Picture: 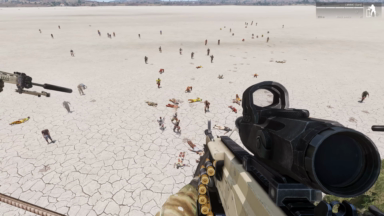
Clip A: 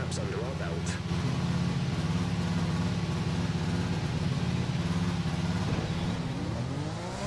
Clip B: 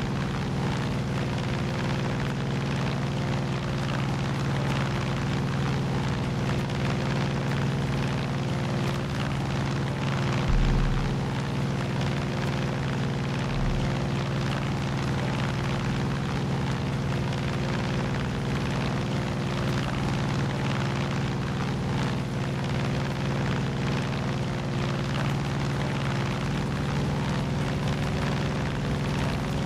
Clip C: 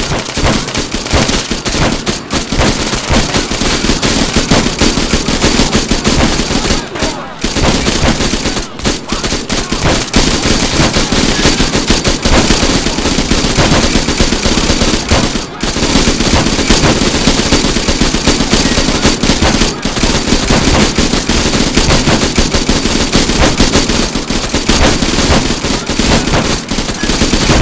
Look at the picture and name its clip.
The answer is C